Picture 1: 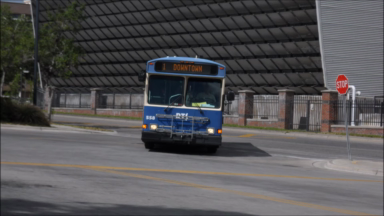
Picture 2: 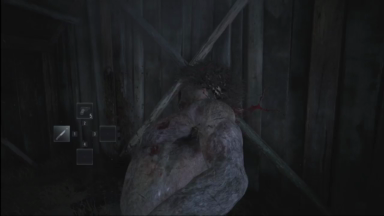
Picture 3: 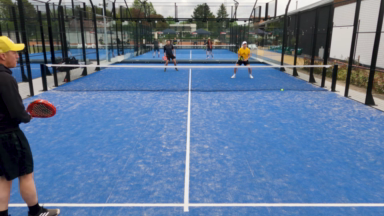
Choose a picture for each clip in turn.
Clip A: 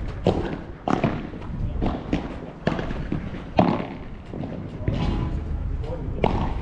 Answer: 3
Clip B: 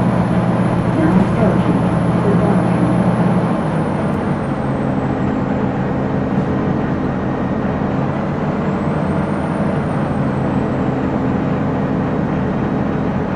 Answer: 1